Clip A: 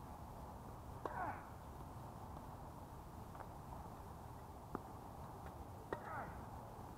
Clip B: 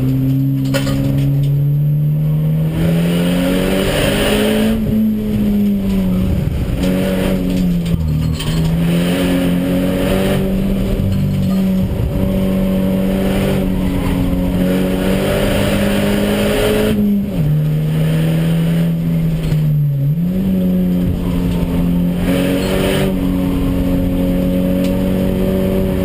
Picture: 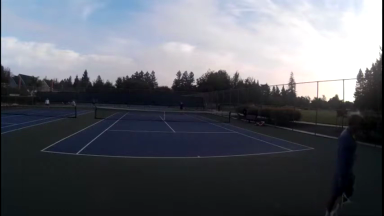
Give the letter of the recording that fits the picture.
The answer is A